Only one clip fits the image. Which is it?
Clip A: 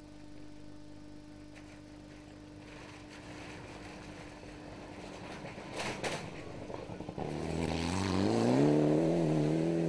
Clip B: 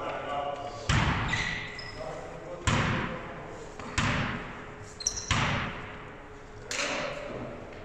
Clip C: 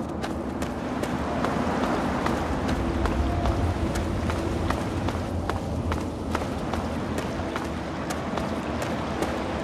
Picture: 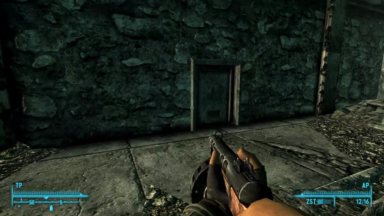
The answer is C